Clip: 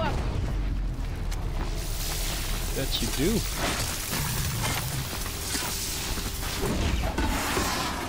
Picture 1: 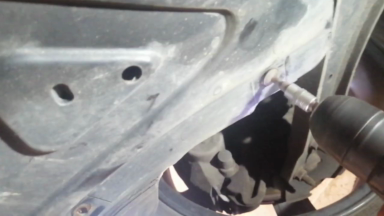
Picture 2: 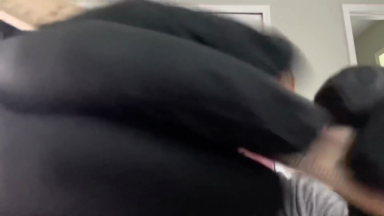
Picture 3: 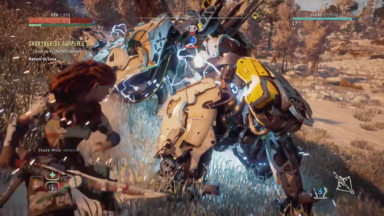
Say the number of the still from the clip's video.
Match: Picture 3